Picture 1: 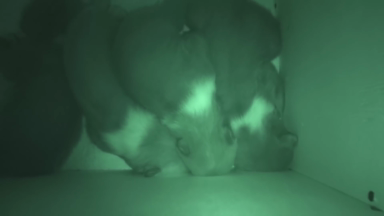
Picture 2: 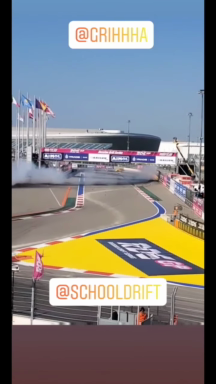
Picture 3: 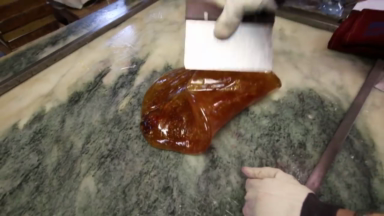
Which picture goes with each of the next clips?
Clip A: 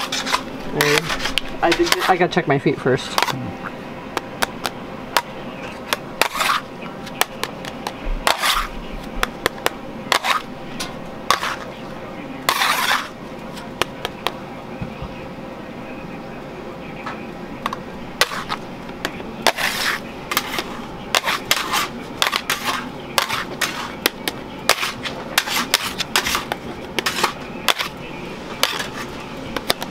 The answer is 3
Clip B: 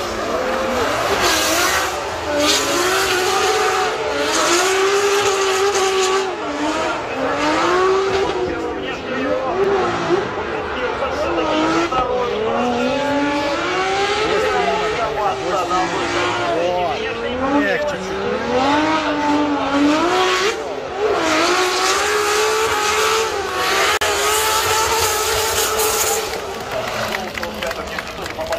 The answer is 2